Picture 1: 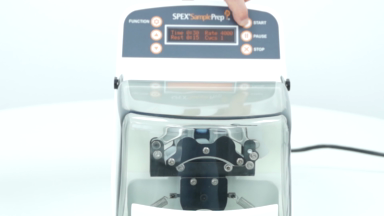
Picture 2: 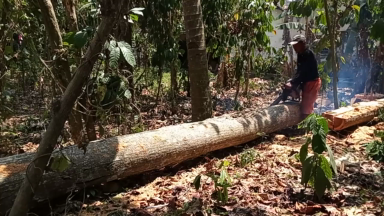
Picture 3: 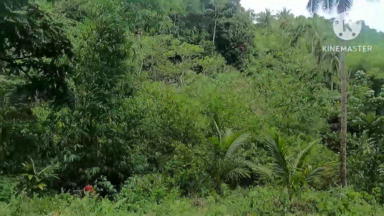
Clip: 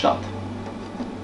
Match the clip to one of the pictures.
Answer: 1